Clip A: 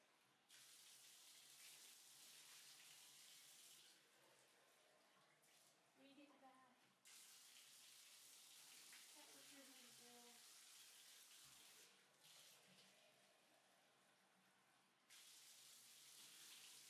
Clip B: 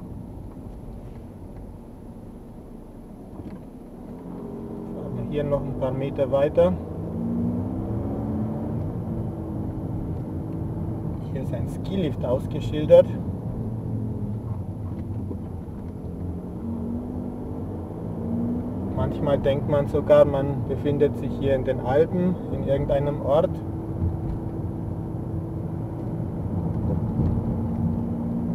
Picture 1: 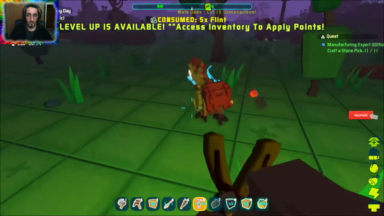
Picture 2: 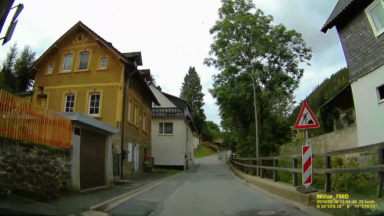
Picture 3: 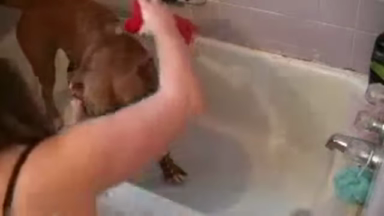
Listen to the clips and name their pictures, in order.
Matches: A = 3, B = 2